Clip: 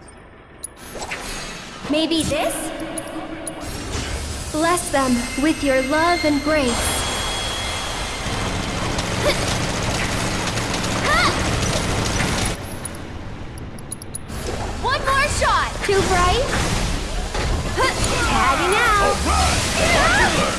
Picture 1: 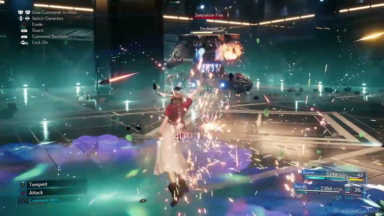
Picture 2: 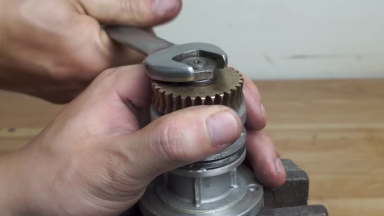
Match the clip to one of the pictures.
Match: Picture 1